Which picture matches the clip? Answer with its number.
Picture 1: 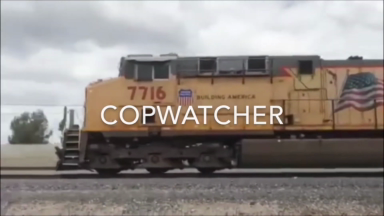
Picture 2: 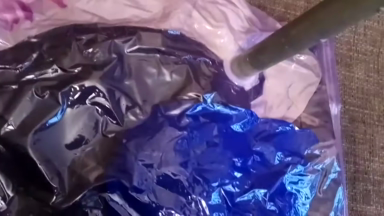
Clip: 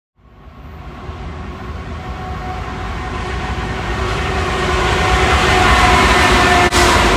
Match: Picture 1